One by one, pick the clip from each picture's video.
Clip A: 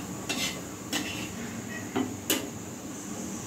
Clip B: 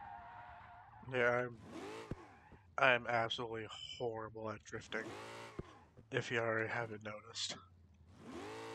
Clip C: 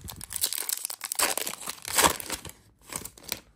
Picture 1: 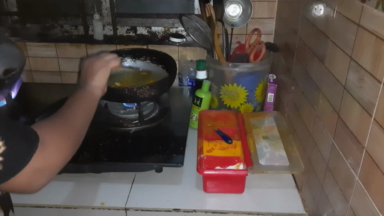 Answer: A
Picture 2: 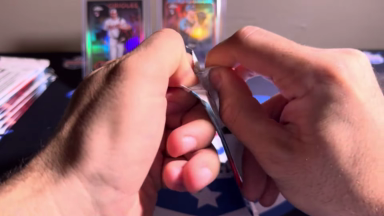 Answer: C